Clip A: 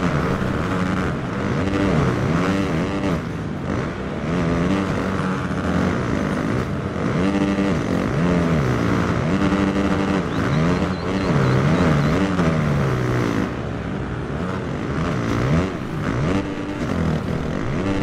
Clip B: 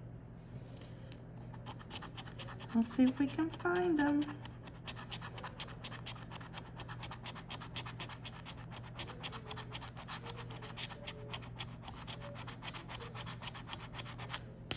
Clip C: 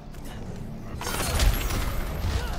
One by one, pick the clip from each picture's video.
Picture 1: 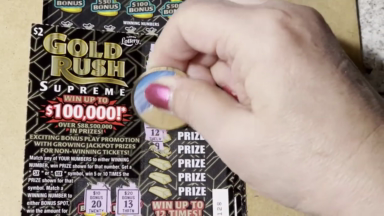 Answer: B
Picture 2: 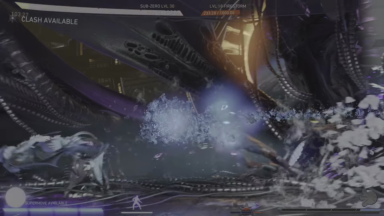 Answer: C